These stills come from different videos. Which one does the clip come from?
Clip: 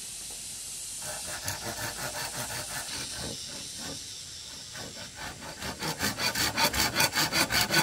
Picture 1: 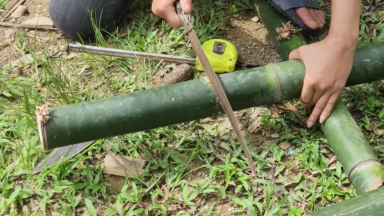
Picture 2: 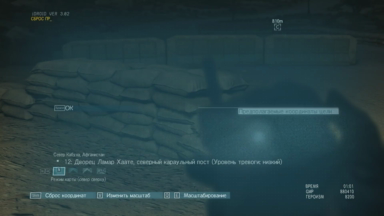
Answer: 1